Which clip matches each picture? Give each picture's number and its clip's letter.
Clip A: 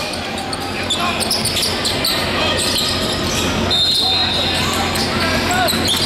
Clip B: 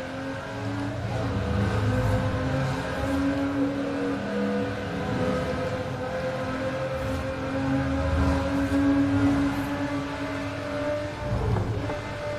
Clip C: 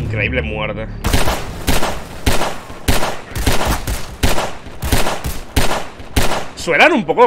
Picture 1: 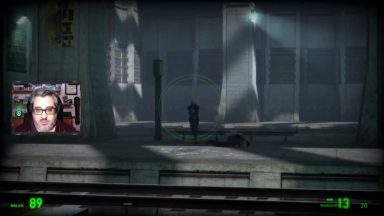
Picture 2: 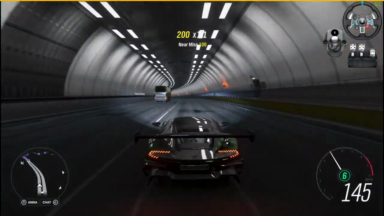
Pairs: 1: C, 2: B